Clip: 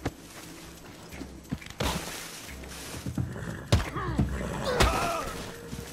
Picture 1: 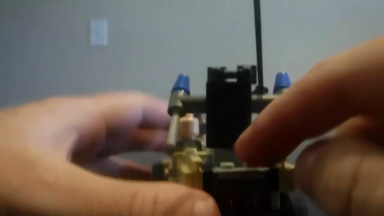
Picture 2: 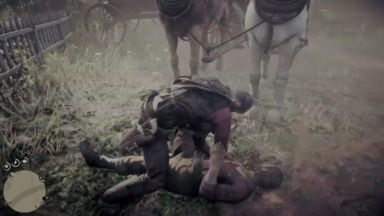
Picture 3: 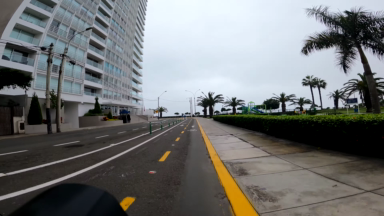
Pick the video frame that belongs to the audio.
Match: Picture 2